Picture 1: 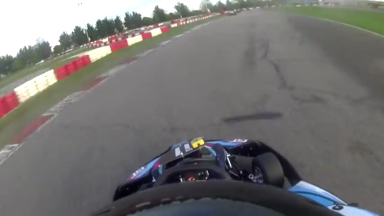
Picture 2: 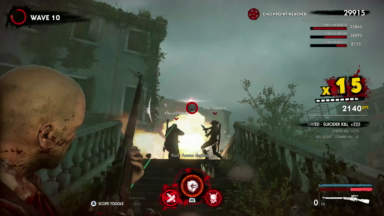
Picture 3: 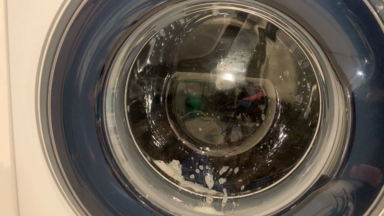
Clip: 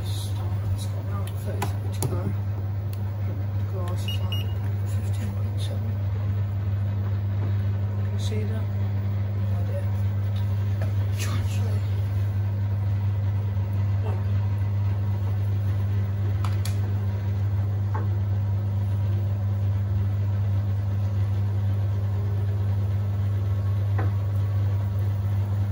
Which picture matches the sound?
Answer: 3